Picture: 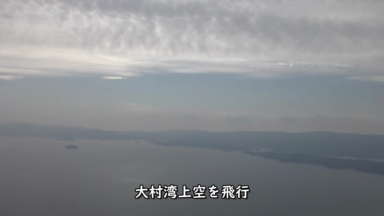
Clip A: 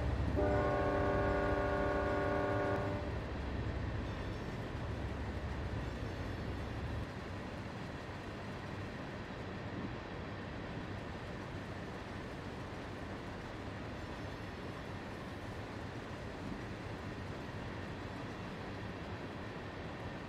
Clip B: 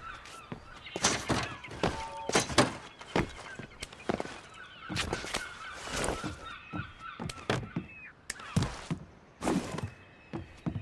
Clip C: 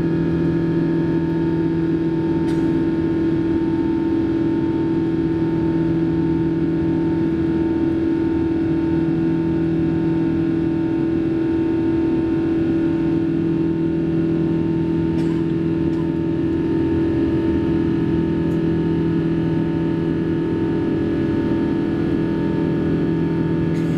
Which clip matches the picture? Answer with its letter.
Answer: C